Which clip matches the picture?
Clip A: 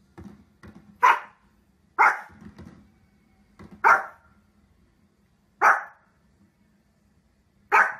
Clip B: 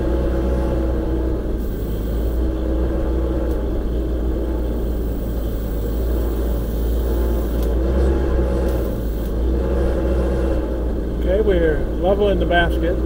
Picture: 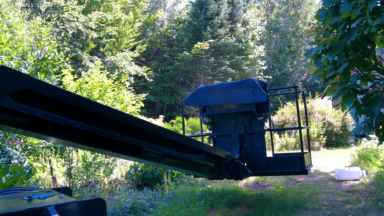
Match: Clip B